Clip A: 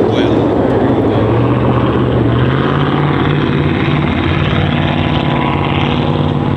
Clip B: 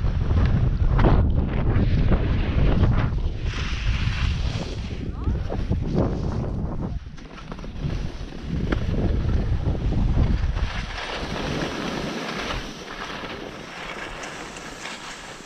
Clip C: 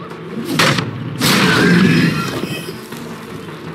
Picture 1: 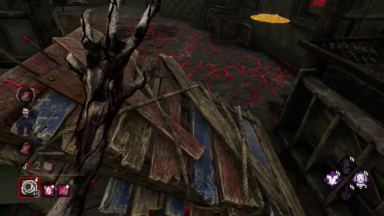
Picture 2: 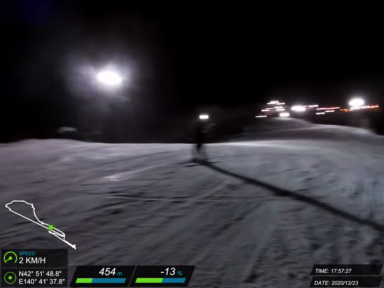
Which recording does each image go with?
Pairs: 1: C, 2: B